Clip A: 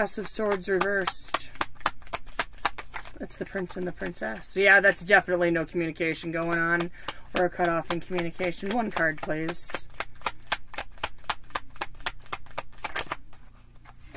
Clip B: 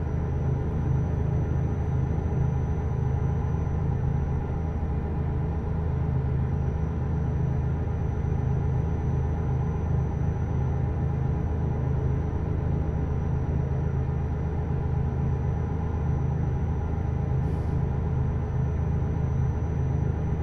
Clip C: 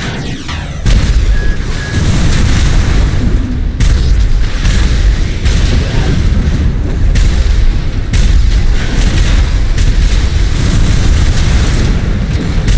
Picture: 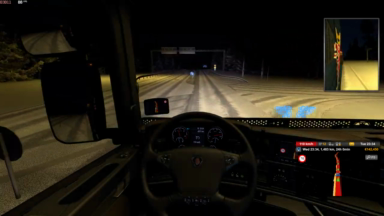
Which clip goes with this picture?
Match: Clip B